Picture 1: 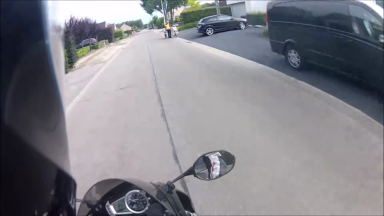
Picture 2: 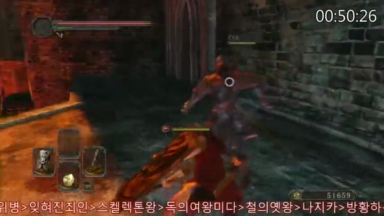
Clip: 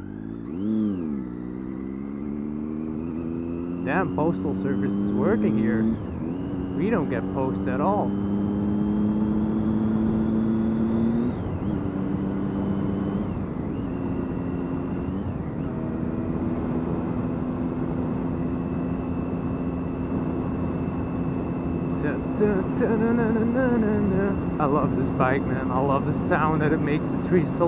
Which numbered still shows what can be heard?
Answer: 1